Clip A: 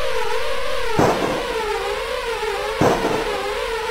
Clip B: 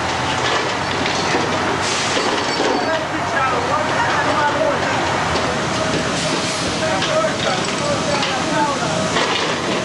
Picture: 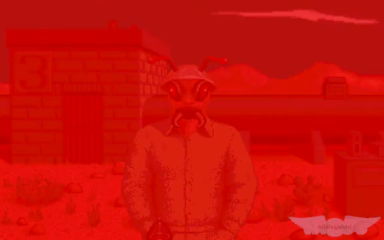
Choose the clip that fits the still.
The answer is A